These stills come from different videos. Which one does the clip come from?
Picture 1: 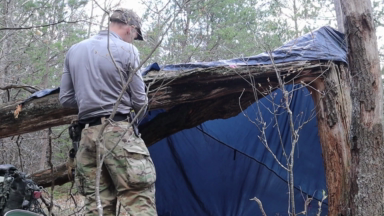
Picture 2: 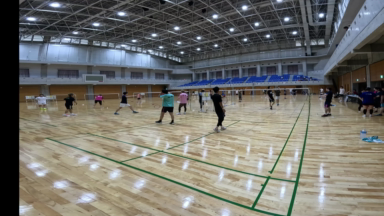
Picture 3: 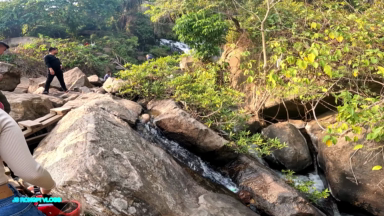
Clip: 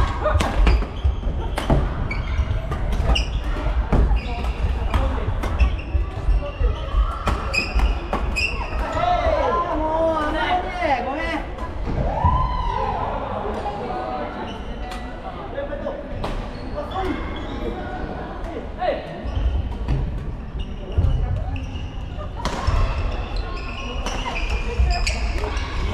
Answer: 2